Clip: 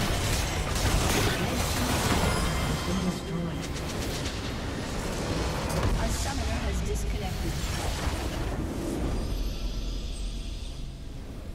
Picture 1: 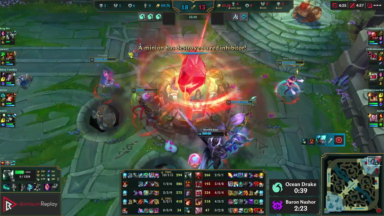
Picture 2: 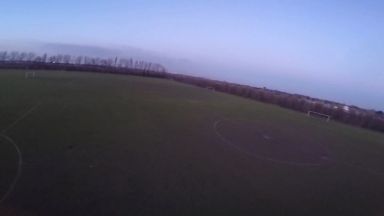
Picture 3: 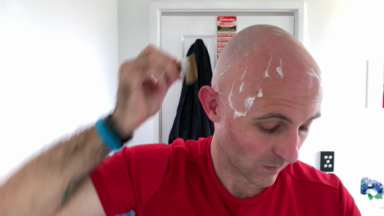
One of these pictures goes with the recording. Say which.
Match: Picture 1